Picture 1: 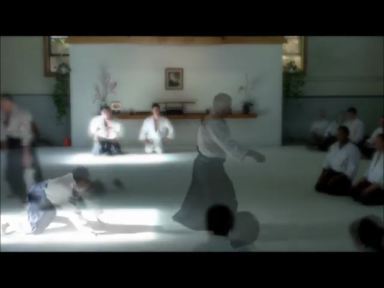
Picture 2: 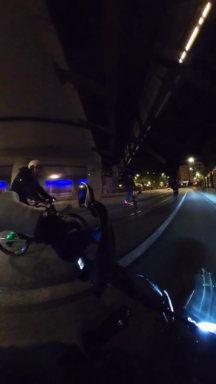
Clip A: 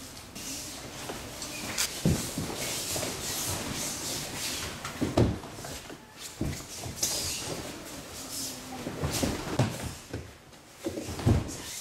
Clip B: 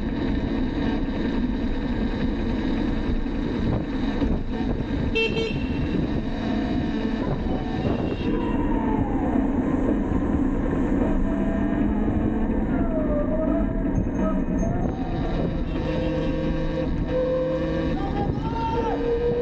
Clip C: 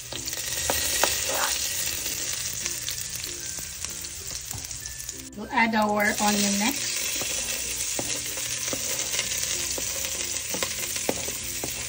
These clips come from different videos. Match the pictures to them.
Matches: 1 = A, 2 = B